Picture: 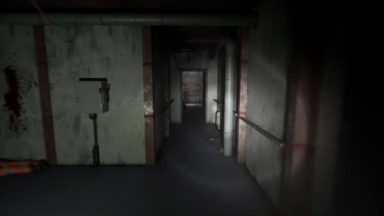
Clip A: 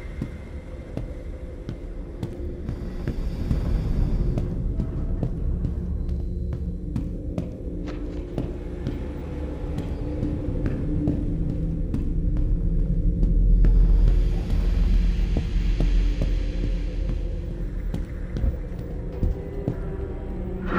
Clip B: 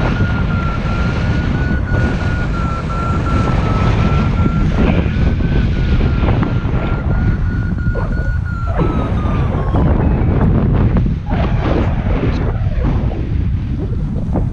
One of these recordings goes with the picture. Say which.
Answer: A